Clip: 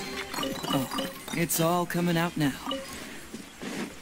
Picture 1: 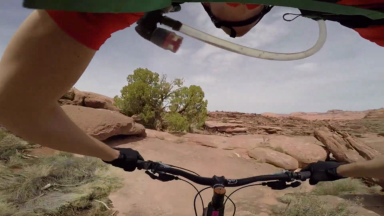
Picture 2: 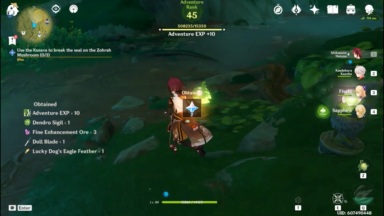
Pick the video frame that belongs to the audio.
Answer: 2